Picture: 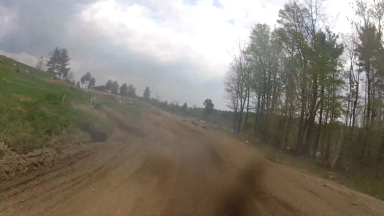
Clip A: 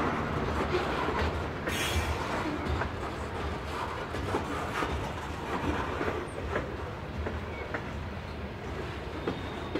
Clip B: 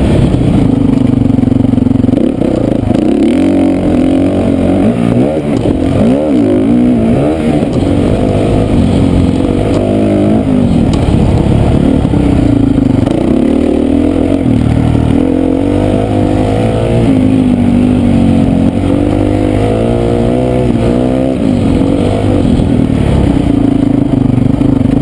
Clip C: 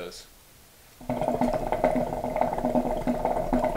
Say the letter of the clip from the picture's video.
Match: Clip B